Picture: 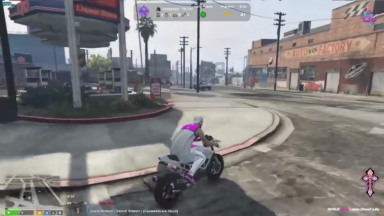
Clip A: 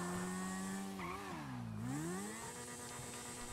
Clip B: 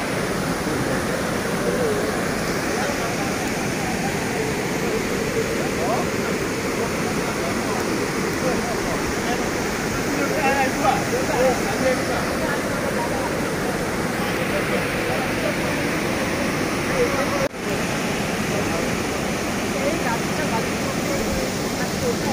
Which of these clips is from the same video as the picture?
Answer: A